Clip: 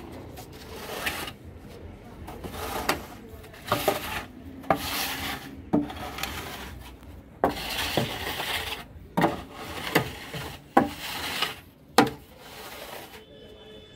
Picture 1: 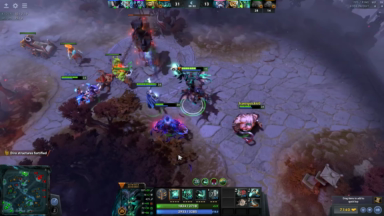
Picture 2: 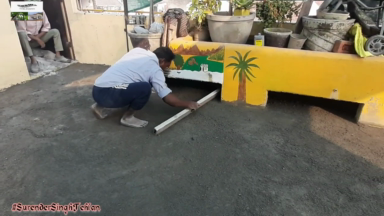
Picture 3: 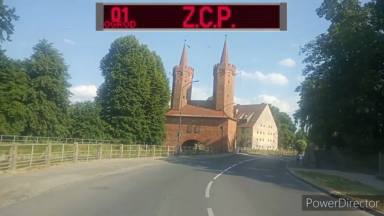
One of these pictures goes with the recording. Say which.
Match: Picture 2